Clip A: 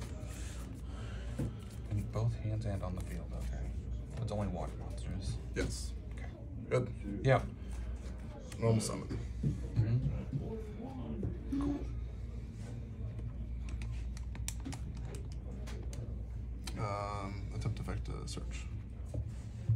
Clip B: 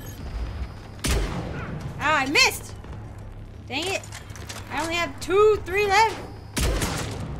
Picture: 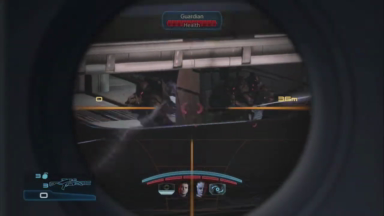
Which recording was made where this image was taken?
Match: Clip B